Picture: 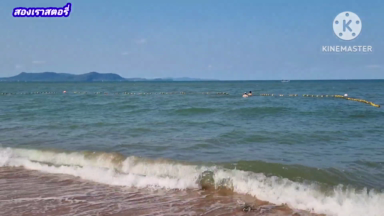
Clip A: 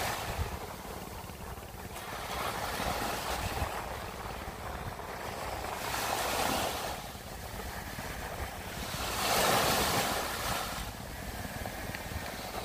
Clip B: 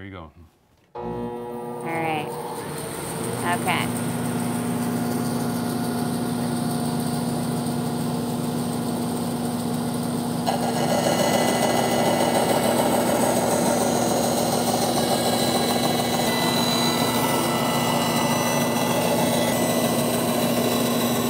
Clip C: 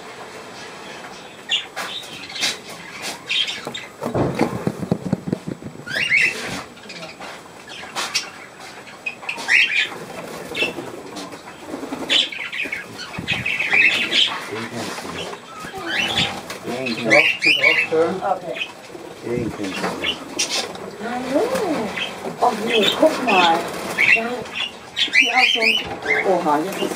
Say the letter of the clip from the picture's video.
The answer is A